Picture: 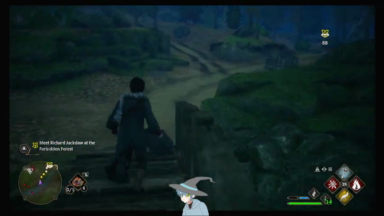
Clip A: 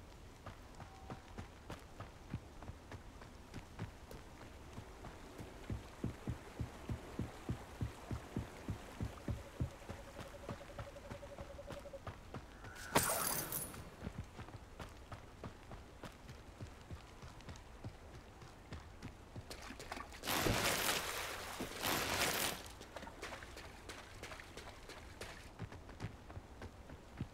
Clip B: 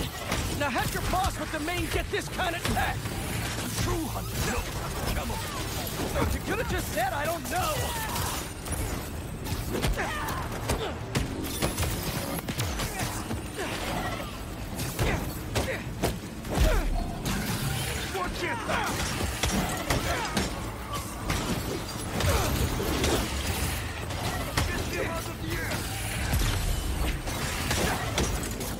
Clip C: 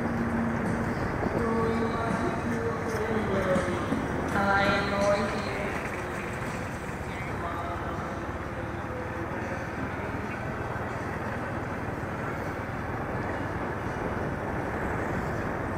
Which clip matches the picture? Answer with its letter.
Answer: A